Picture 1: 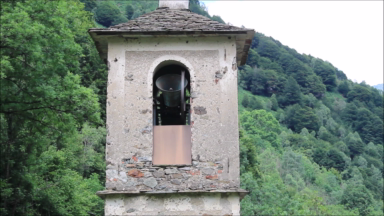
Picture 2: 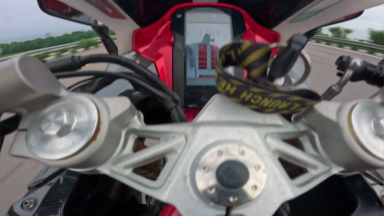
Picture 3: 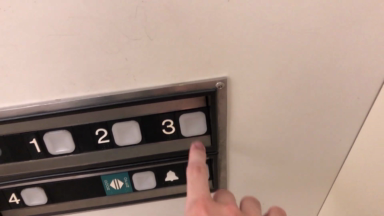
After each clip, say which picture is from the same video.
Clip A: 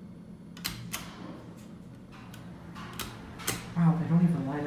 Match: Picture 3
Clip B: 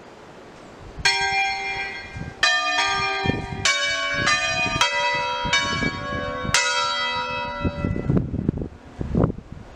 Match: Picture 1